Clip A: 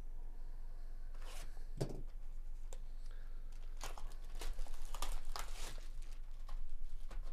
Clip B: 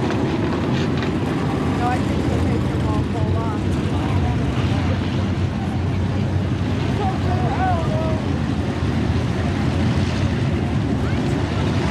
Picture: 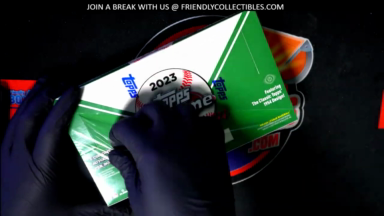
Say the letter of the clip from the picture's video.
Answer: A